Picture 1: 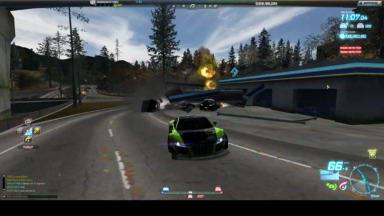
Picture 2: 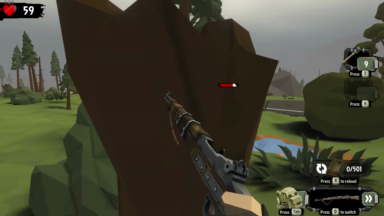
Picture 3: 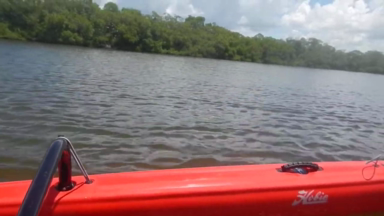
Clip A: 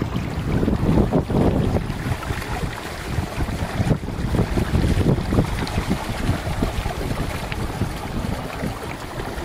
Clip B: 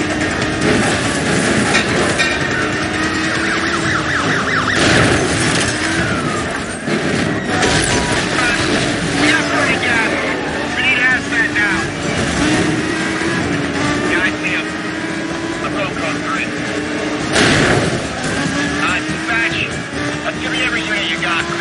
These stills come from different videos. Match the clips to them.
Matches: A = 3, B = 1